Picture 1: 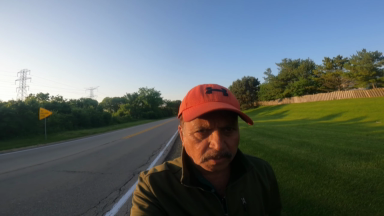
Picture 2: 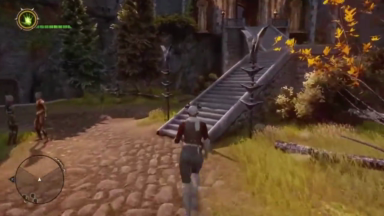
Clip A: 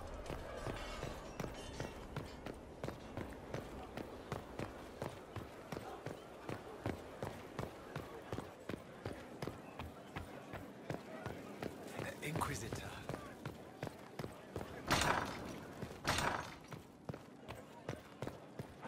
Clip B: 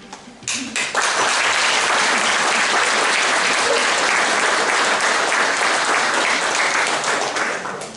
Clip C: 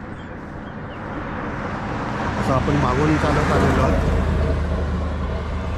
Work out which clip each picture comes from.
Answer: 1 C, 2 A